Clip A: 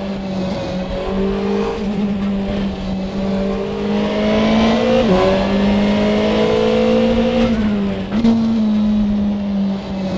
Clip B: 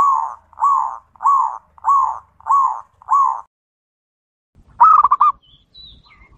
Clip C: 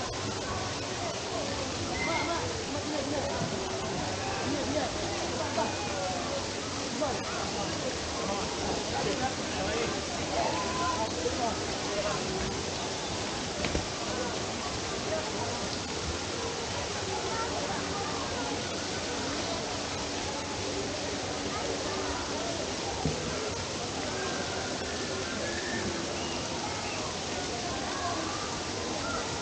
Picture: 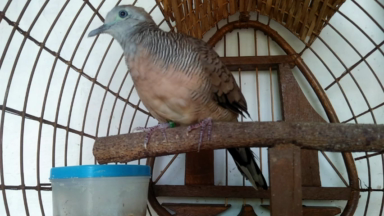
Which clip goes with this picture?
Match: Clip B